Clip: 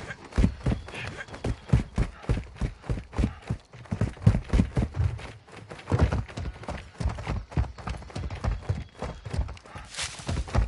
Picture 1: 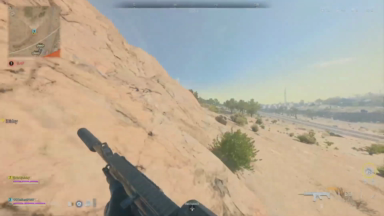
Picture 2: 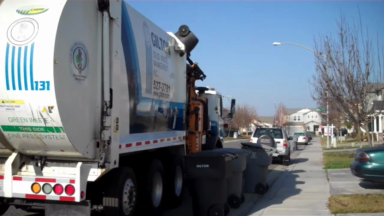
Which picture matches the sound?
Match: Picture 1